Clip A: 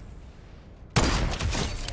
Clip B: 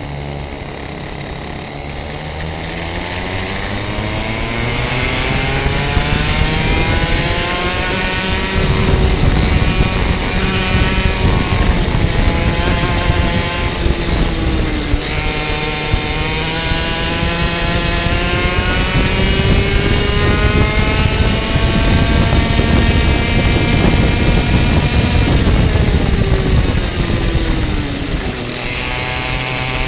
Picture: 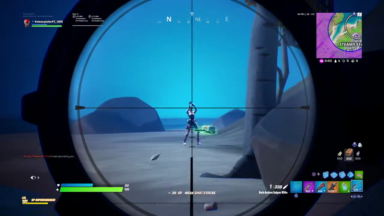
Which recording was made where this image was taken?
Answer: A